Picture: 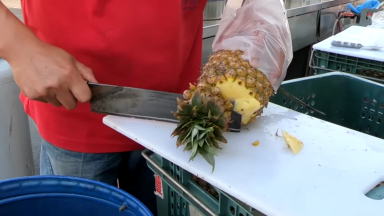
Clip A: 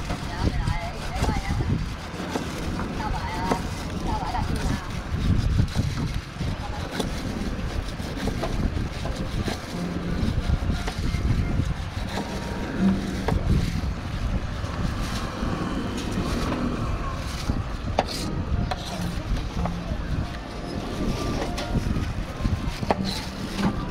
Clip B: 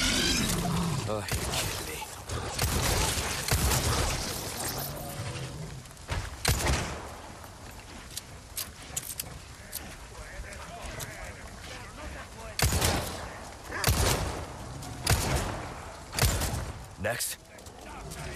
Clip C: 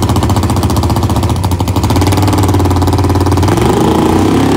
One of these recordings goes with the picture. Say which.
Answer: A